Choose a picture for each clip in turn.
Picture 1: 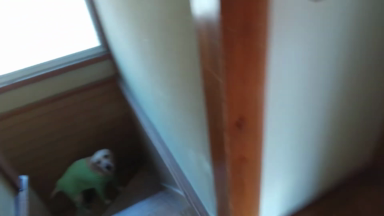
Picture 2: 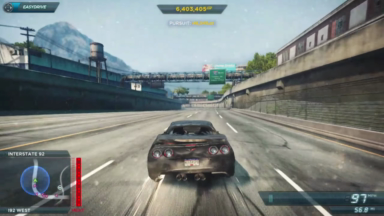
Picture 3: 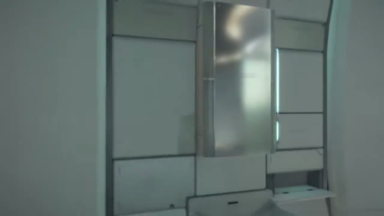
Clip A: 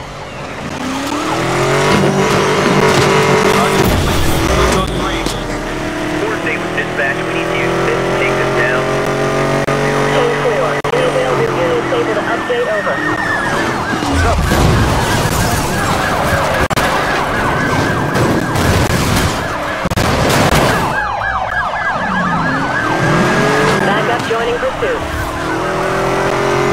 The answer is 2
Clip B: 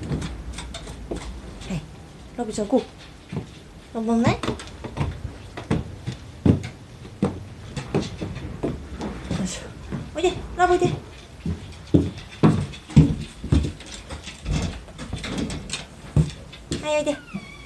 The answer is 1